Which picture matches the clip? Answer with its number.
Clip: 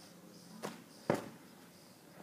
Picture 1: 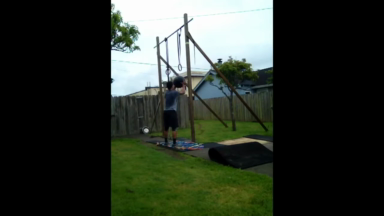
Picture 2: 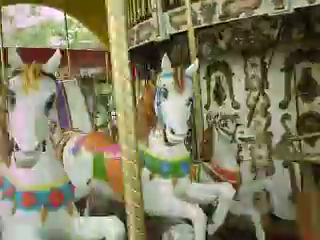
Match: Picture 1